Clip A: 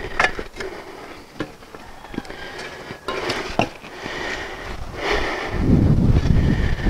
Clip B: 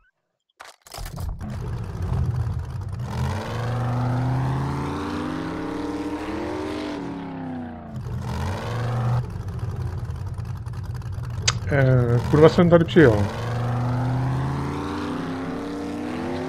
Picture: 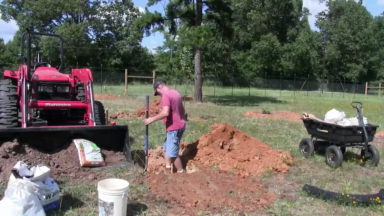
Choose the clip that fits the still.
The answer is A